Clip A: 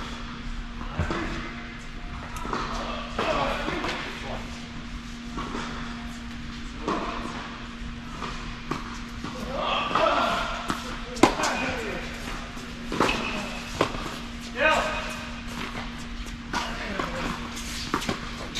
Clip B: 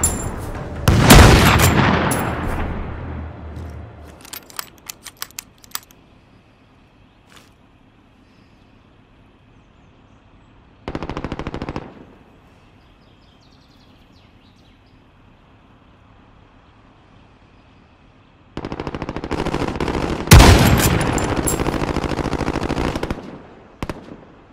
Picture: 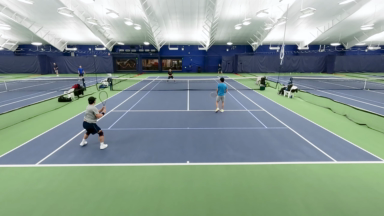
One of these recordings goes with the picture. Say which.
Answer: A